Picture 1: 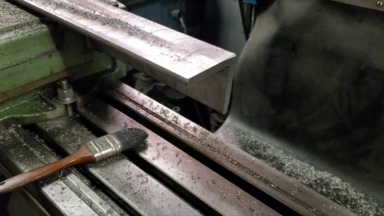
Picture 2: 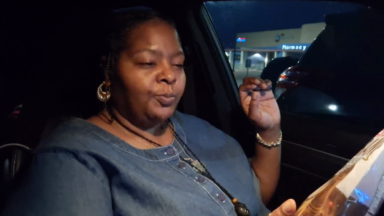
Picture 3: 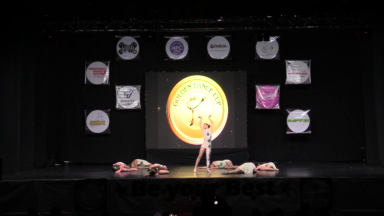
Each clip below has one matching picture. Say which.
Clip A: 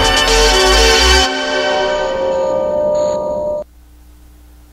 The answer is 3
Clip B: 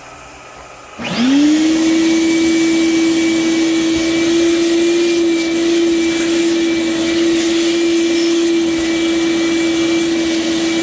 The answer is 1